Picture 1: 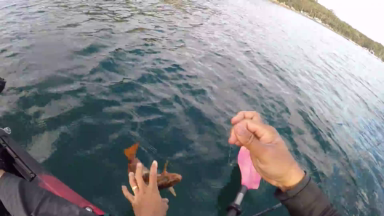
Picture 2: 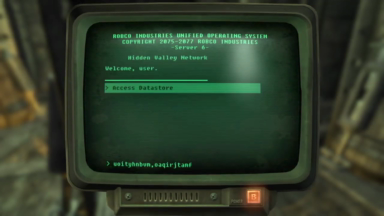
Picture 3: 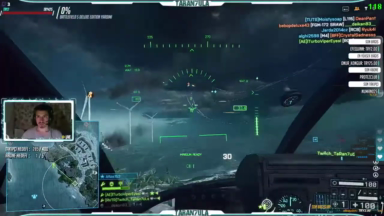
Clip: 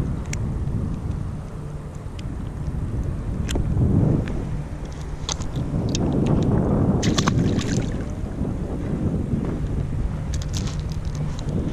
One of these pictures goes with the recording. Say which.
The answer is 1